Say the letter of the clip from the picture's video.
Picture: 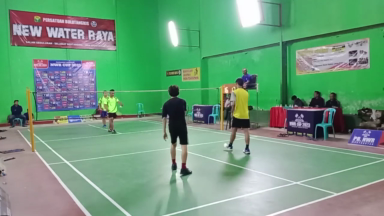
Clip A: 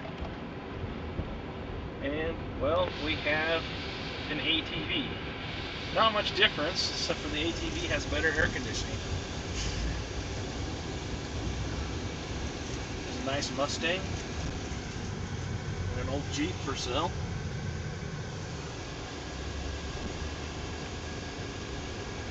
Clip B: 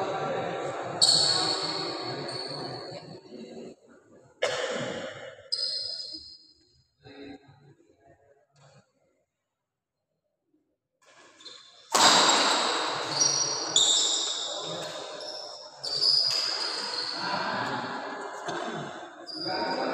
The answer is B